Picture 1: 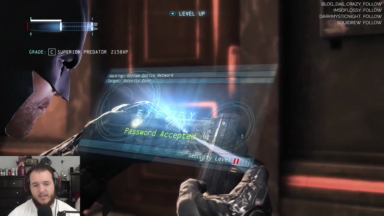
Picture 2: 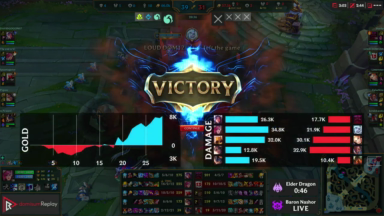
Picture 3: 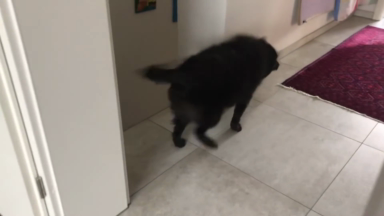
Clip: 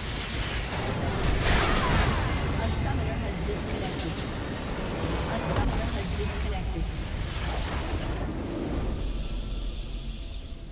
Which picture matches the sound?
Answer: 2